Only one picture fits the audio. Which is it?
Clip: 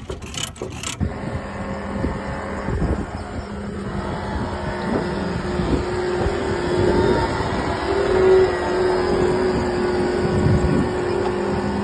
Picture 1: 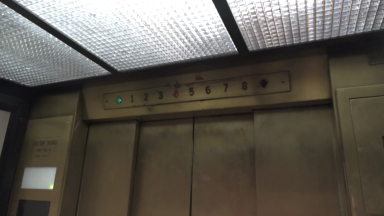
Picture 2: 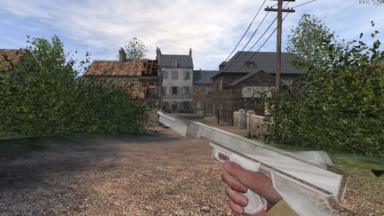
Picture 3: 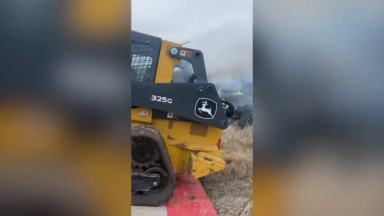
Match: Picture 3